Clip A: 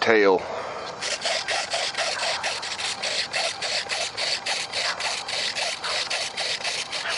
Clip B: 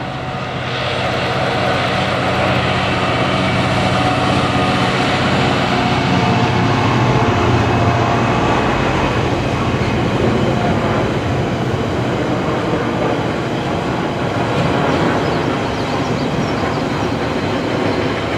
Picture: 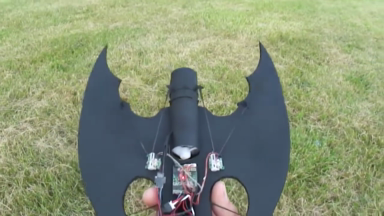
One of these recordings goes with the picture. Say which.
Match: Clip A